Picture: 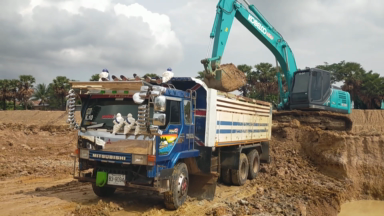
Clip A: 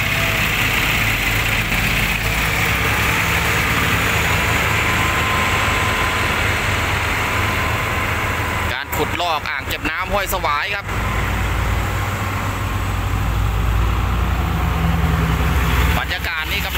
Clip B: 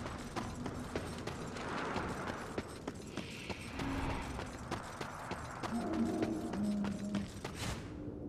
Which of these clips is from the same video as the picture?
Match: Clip A